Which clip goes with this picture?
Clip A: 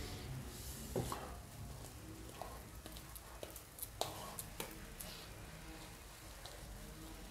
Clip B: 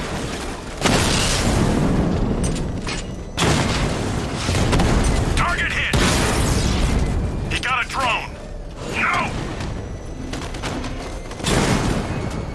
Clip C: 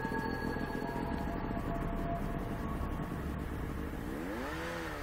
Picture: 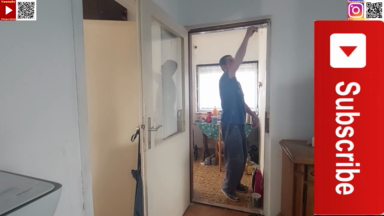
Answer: A